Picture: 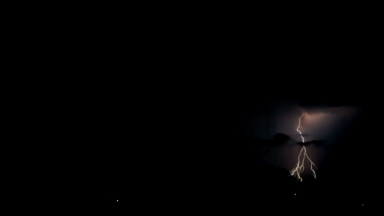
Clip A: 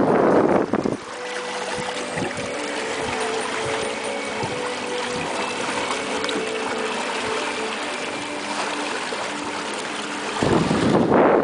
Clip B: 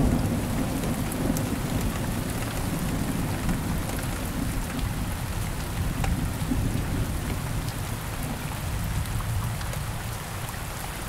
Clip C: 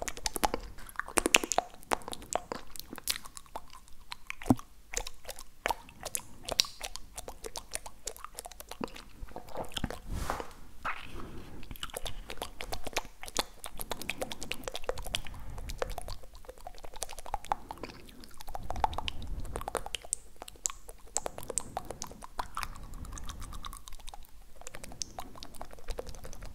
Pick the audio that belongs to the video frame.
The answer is B